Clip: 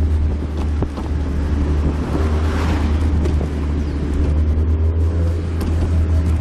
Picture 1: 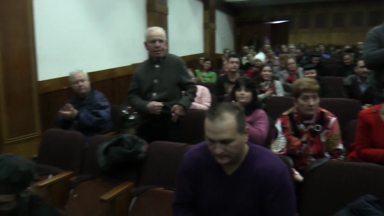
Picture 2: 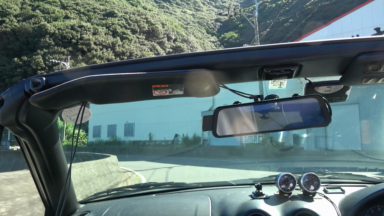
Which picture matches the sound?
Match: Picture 2